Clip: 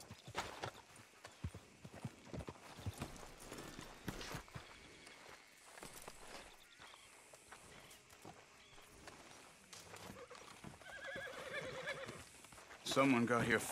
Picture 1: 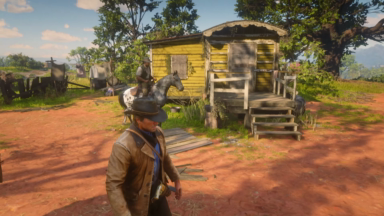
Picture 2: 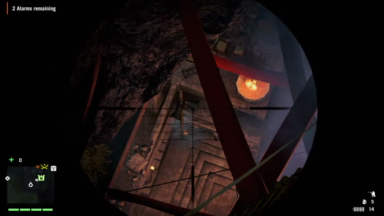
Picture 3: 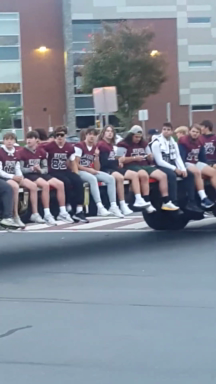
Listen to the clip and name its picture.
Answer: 1